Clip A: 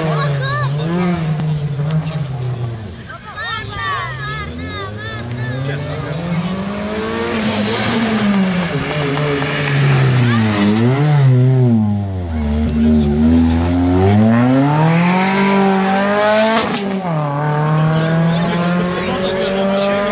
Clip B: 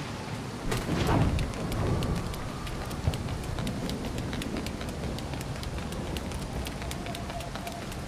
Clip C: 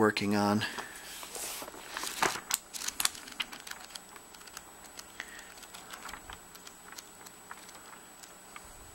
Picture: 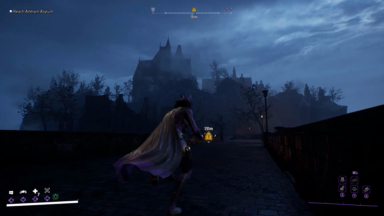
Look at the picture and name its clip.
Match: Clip B